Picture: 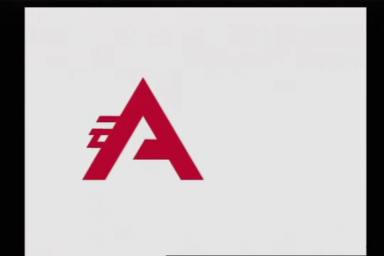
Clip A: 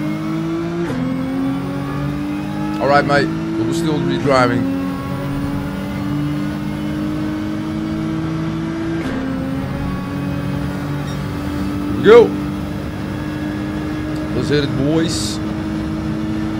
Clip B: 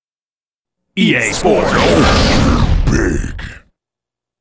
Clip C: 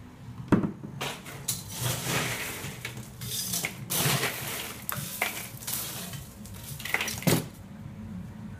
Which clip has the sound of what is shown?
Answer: B